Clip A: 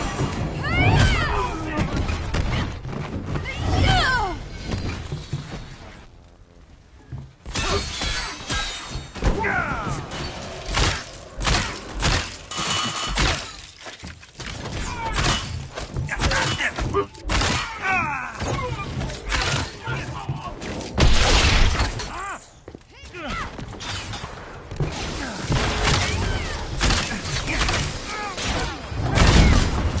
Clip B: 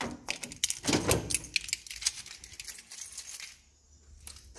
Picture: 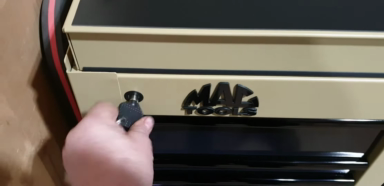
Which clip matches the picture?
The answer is B